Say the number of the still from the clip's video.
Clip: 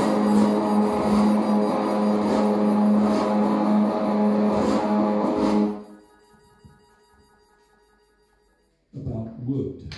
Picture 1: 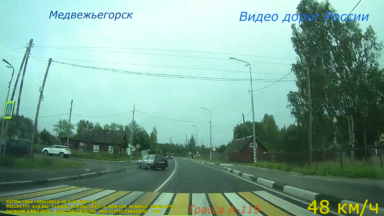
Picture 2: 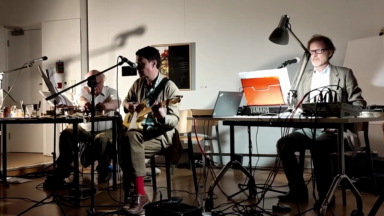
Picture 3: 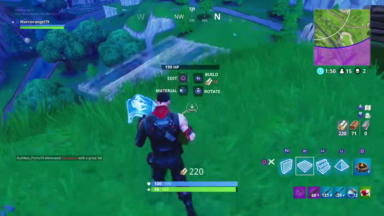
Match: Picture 2